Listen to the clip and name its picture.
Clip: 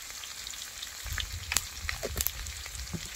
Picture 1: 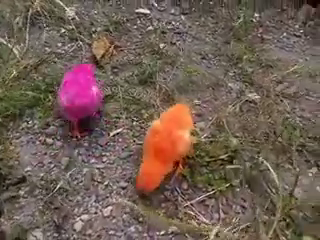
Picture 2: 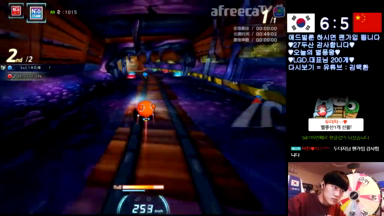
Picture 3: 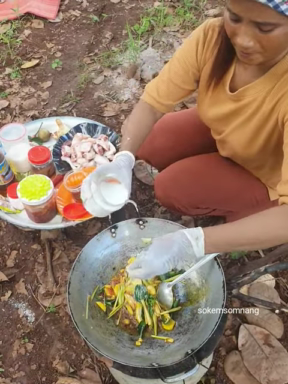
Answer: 3